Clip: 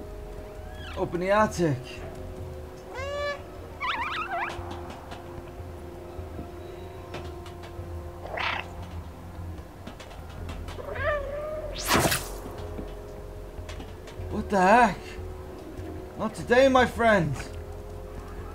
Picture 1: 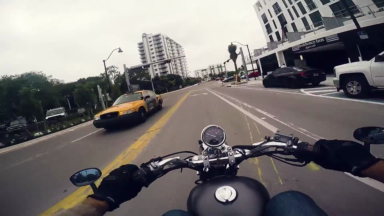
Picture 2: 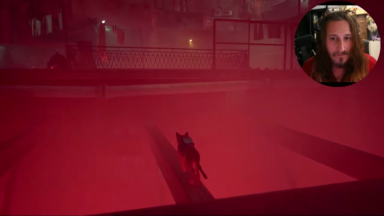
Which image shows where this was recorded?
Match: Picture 2